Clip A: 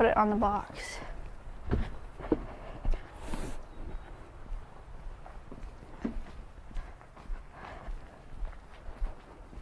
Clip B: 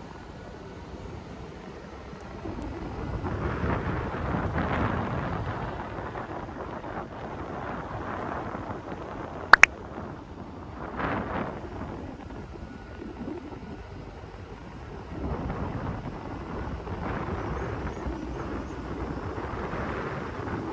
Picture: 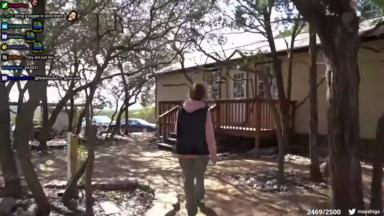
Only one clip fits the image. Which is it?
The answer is A